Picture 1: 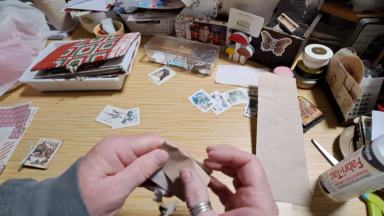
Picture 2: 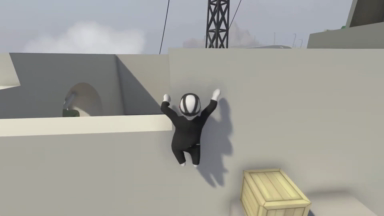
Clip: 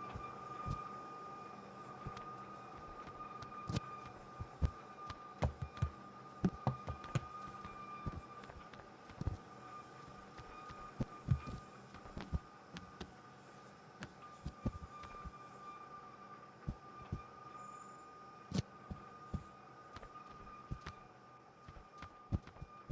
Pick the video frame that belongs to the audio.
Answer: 2